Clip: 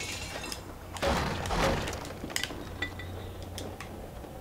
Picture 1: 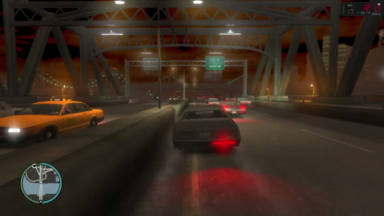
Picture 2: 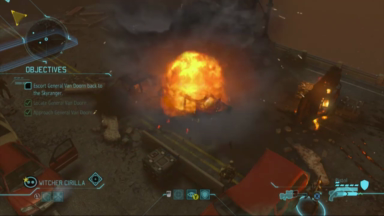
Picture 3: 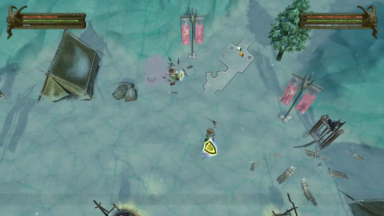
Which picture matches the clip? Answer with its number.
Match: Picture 3